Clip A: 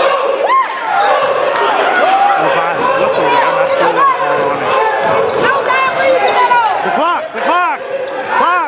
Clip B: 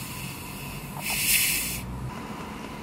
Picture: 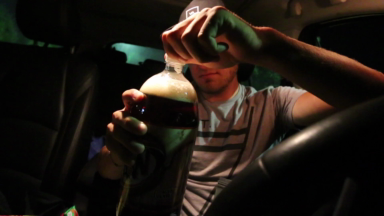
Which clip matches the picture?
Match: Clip B